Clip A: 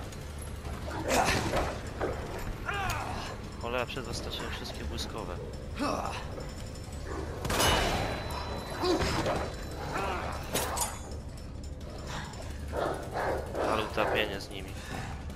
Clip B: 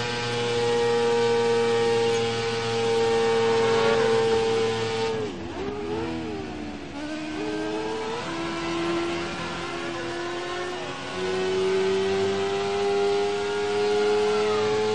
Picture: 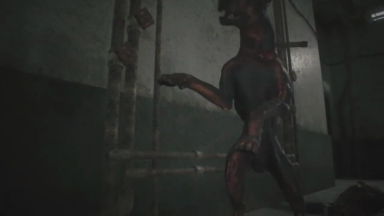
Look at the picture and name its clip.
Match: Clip A